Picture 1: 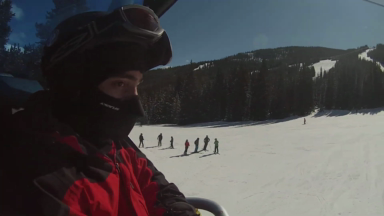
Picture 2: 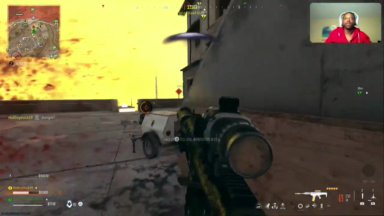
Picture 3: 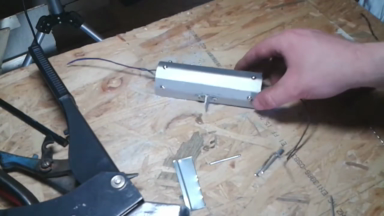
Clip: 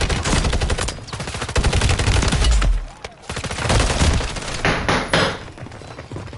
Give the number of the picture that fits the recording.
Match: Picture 2